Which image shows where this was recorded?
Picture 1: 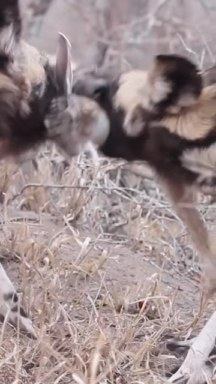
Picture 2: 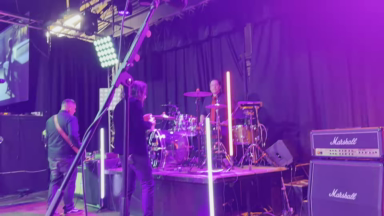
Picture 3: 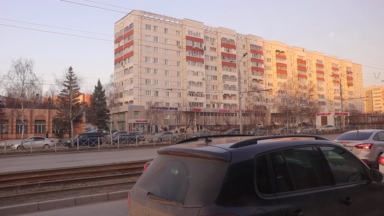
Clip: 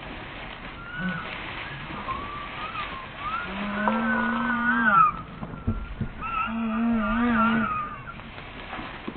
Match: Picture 1